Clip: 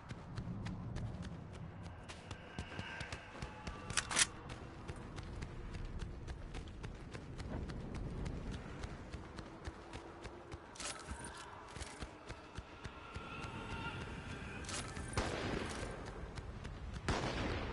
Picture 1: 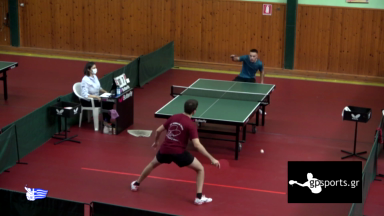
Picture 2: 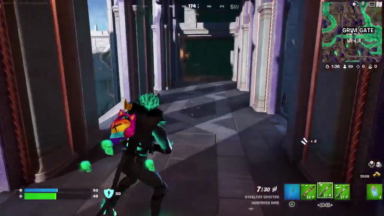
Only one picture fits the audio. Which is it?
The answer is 2